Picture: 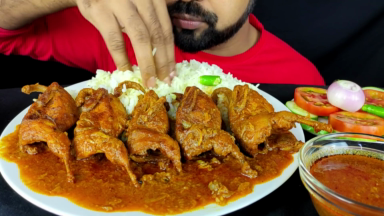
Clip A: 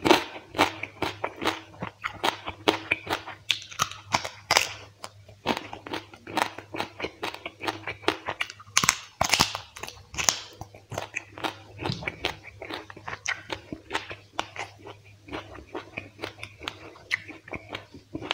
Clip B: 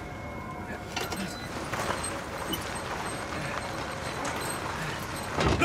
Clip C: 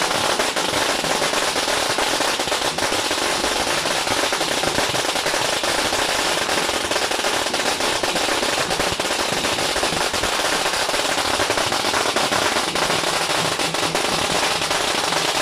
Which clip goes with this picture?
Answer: A